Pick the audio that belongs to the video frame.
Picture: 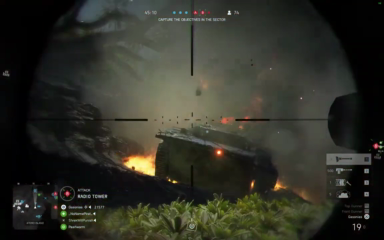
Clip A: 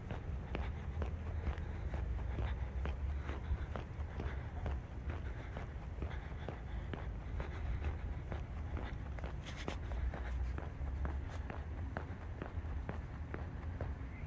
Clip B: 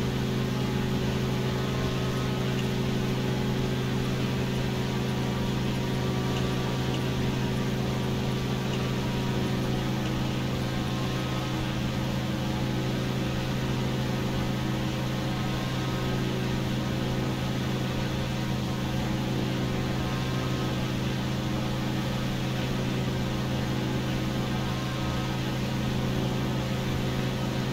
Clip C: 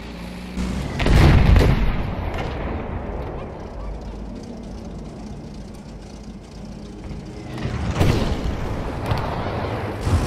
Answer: C